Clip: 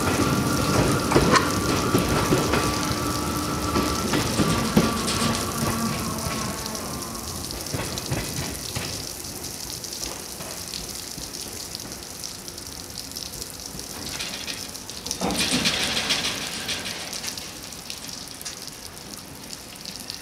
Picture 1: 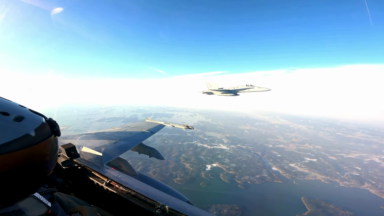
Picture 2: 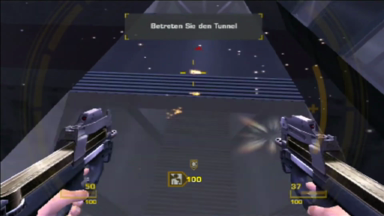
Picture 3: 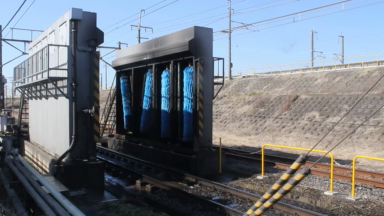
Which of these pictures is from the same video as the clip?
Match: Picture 3